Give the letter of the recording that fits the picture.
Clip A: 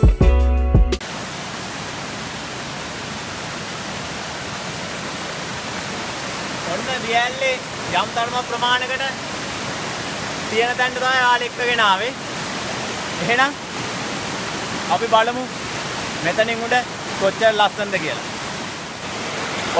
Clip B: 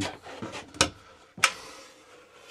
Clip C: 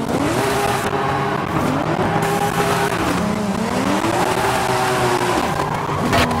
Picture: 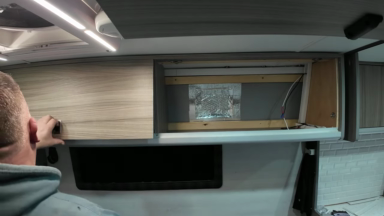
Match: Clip B